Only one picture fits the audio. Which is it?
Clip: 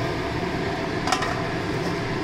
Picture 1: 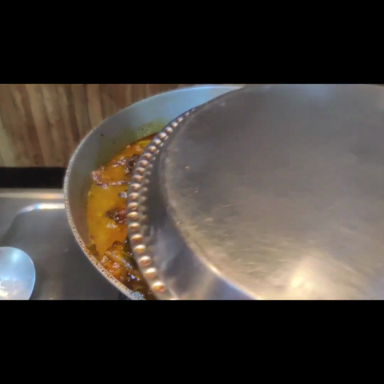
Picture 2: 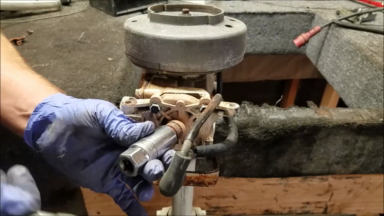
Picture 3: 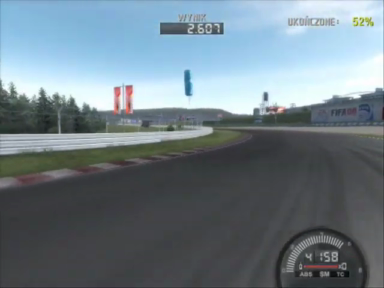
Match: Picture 1